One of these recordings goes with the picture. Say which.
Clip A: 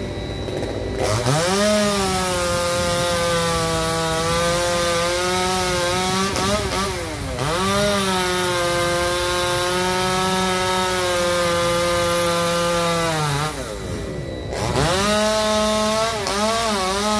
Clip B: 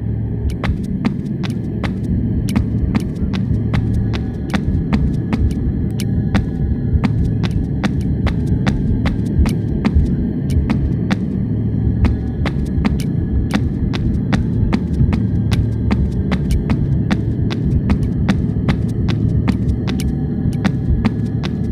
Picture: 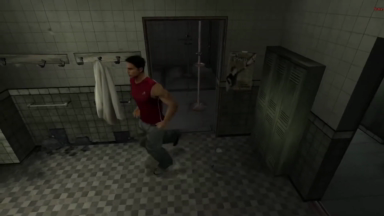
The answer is B